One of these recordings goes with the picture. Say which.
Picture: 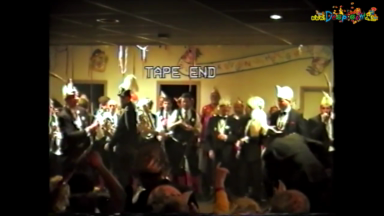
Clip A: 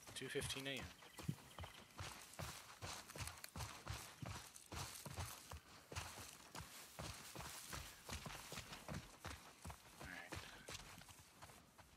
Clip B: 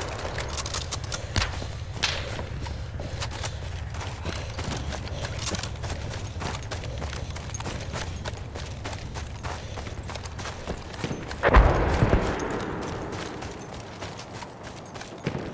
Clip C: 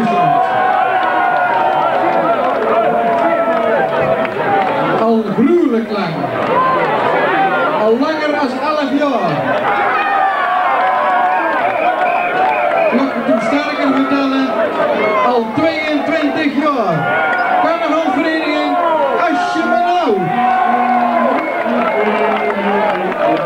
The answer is C